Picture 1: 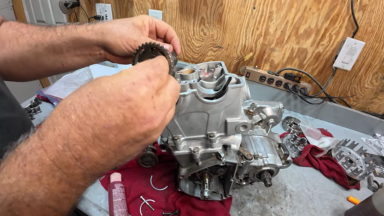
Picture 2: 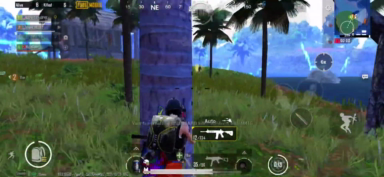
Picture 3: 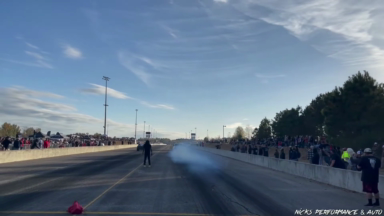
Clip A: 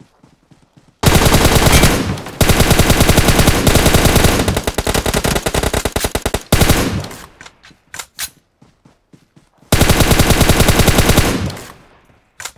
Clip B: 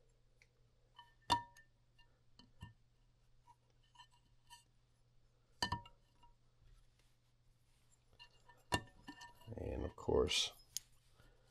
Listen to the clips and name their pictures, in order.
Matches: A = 2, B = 1